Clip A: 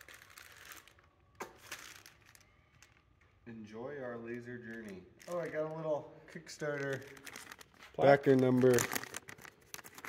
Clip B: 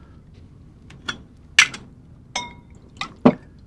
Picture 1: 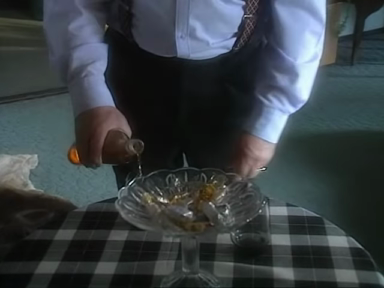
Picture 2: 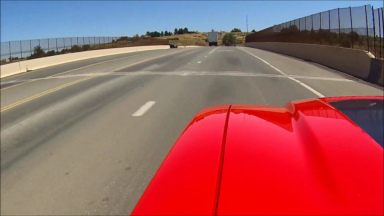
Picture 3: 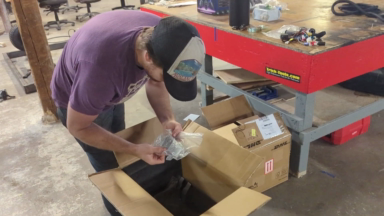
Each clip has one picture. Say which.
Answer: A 3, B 1